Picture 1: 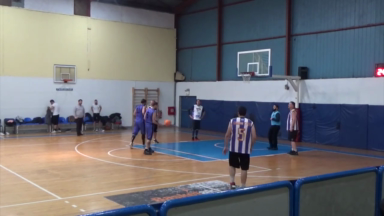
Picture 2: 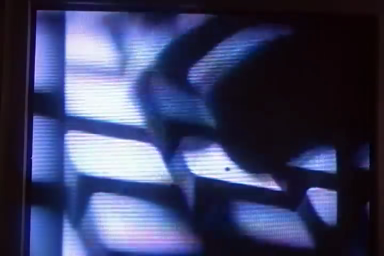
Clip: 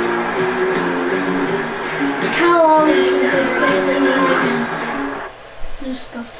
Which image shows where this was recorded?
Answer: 2